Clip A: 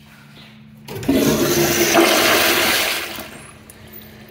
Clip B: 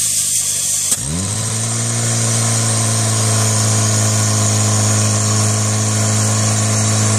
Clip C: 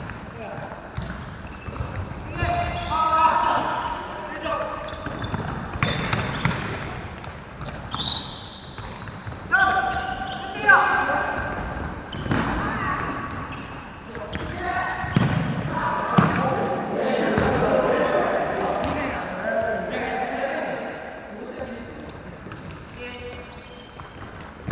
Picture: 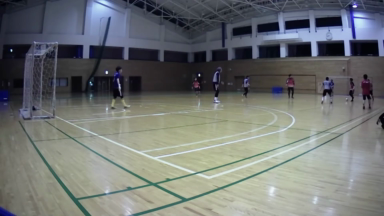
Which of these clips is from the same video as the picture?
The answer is C